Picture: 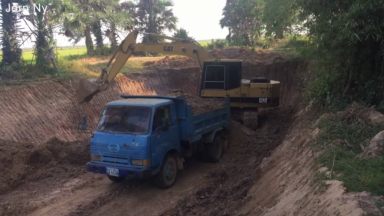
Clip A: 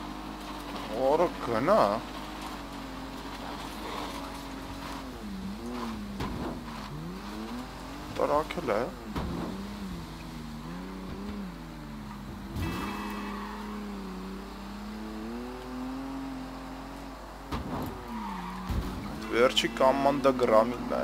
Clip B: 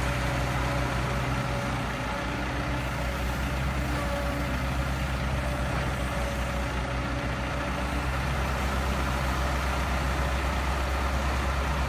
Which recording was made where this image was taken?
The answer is B